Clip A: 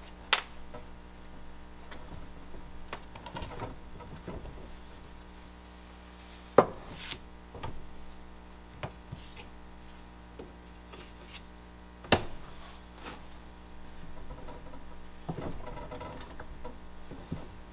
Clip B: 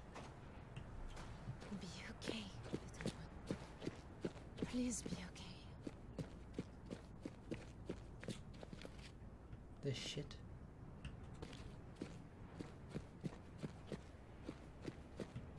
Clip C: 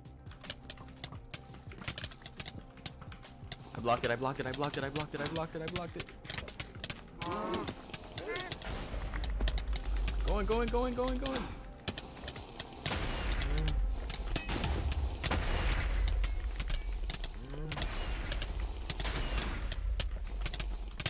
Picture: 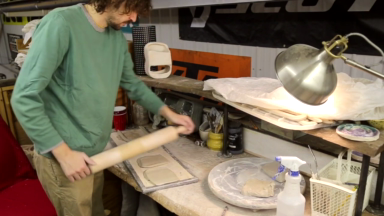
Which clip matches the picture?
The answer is A